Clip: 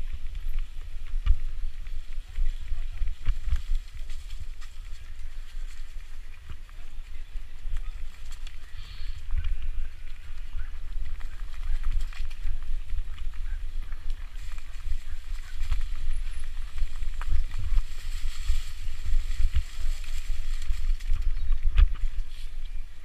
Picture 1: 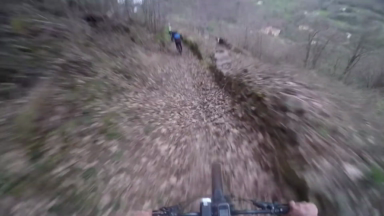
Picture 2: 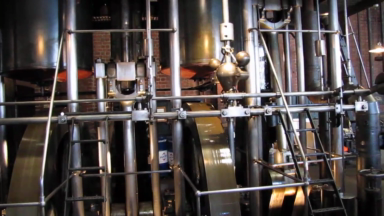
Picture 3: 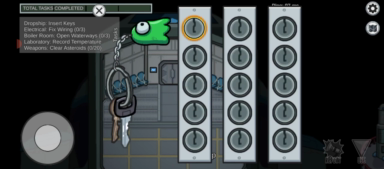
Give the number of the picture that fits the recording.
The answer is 1